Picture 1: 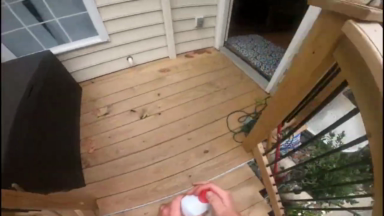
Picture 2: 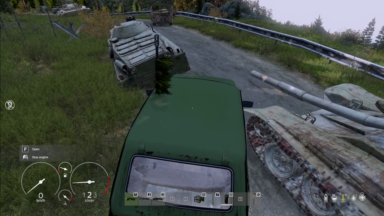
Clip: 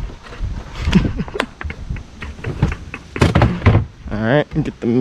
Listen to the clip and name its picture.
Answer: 1